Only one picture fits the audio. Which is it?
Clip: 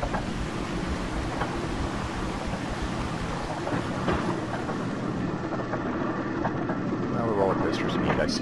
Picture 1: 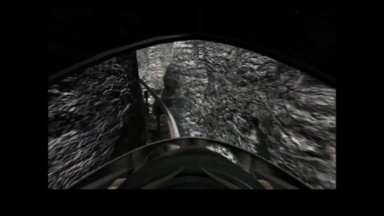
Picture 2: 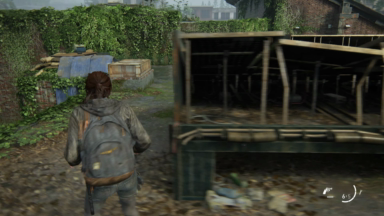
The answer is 1